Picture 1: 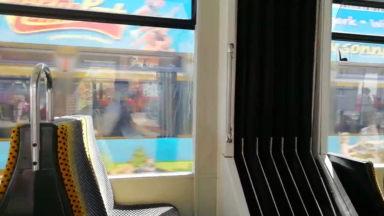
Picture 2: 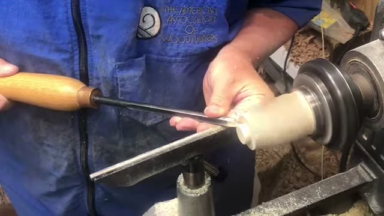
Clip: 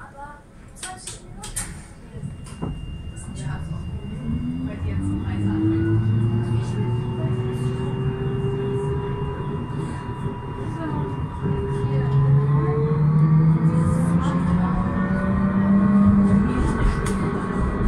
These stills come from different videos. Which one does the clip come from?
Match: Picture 1